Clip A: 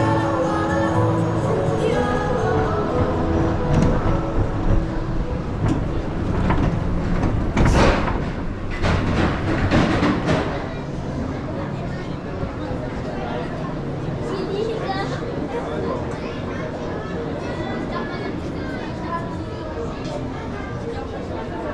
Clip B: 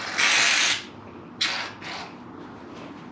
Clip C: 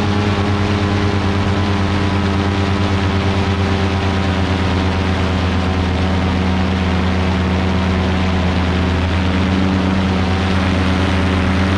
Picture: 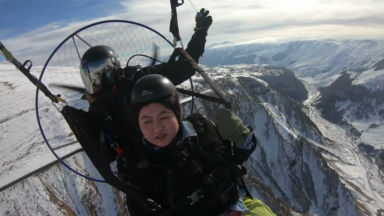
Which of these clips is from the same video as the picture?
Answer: C